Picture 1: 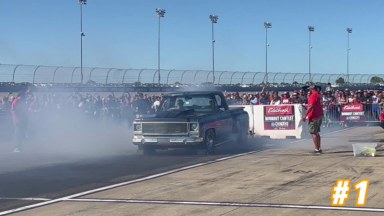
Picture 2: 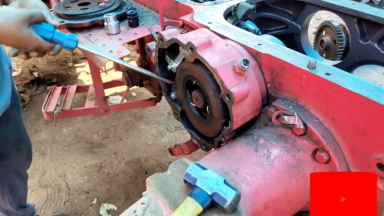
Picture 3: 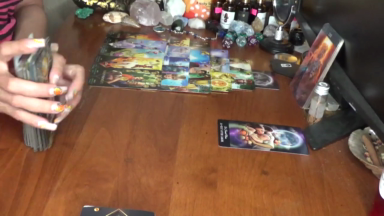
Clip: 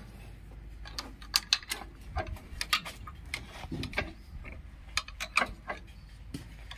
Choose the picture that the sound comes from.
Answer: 2